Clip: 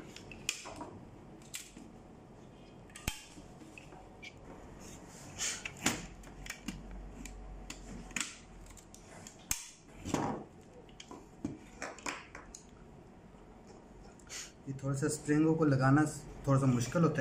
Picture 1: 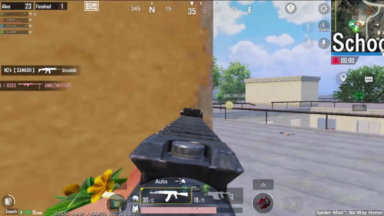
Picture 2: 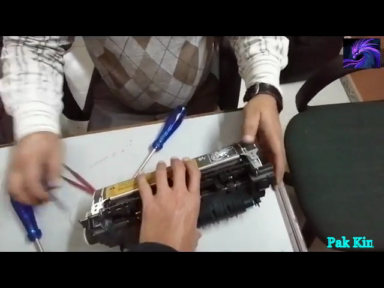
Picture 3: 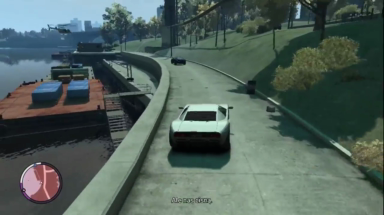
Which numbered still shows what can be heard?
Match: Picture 2